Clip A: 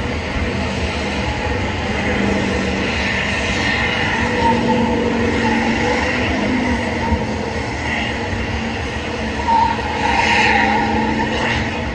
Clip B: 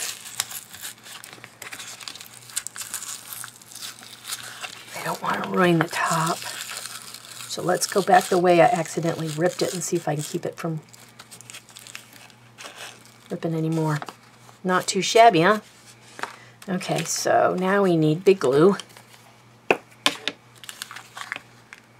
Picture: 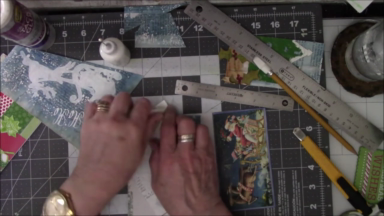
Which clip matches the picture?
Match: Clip B